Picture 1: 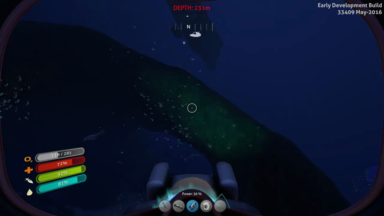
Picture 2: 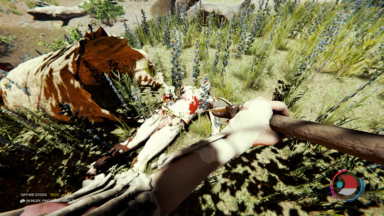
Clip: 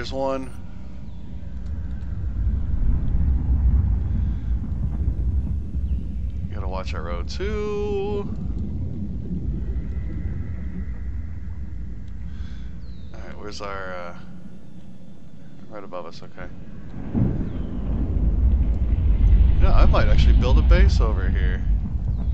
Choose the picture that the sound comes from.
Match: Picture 1